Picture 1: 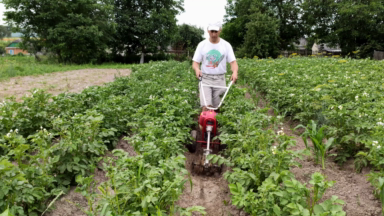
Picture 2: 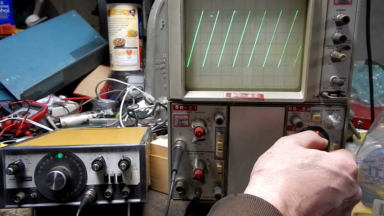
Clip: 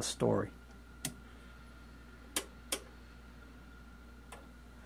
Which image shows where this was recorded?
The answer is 2